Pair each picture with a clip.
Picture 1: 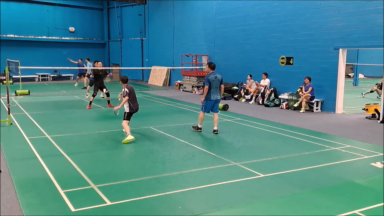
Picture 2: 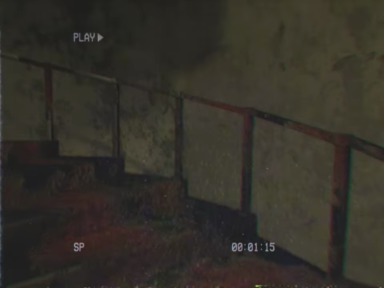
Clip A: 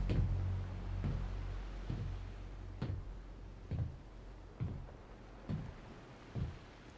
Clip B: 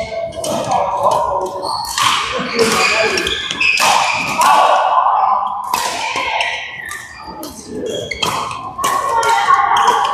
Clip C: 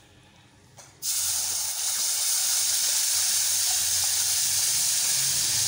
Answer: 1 B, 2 A